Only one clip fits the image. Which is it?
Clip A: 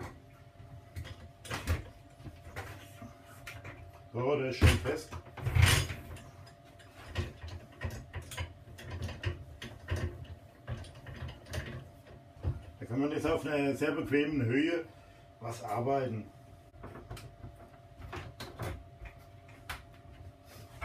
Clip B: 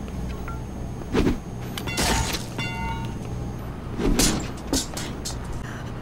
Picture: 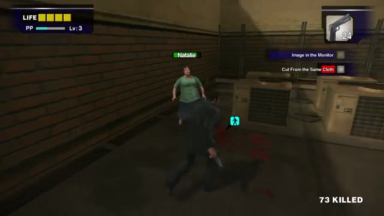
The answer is B